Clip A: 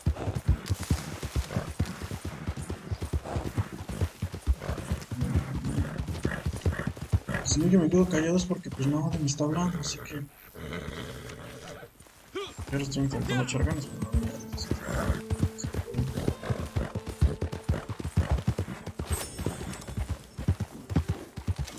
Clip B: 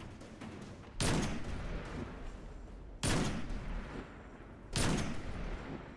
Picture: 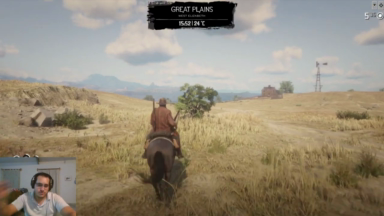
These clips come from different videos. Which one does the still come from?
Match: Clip A